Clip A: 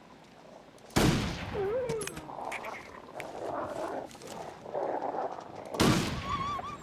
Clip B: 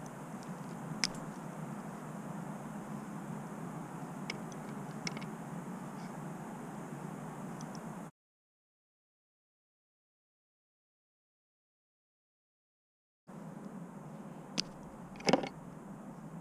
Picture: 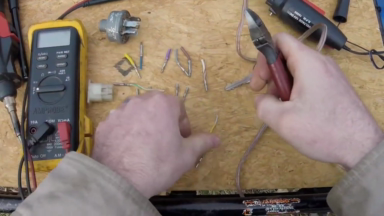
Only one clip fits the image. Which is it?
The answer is B